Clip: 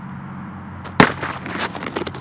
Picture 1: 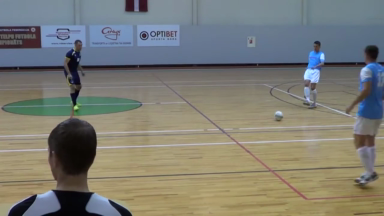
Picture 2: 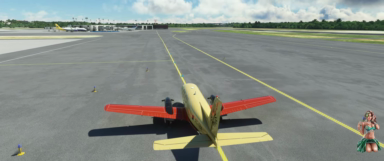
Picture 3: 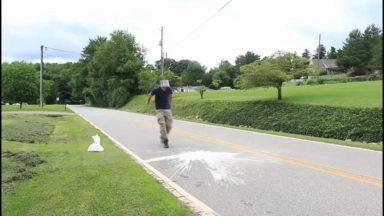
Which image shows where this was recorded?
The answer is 3